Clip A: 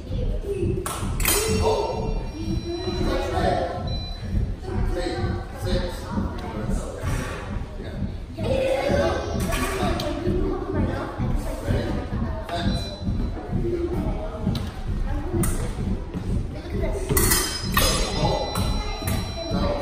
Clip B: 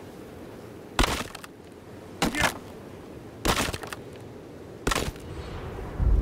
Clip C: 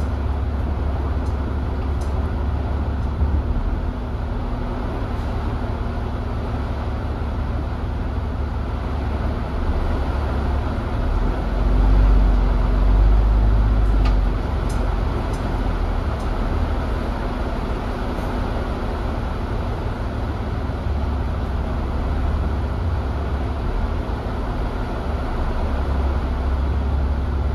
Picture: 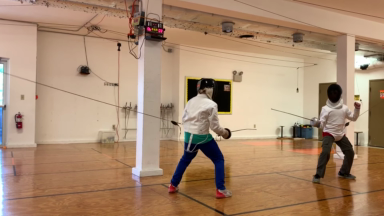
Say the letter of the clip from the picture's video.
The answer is A